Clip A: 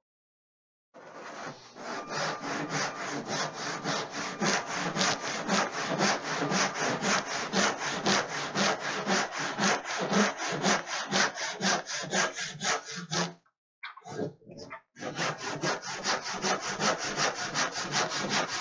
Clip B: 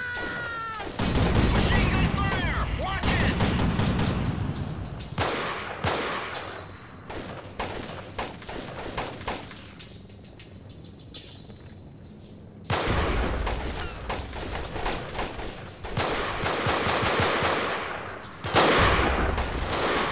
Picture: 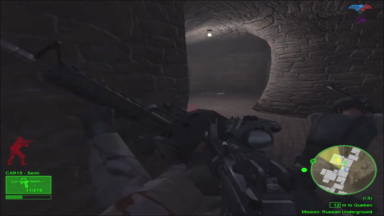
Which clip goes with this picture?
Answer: B